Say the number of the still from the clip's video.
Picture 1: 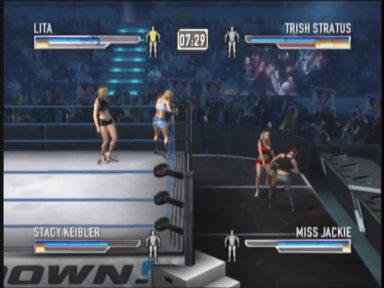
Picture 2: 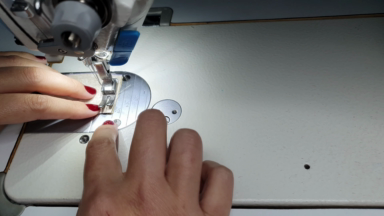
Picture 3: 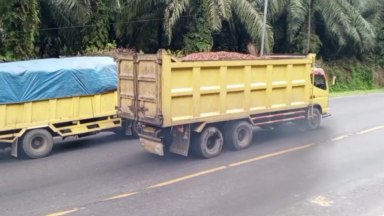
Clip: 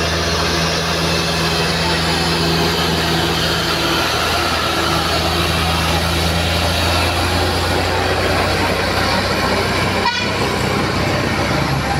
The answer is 3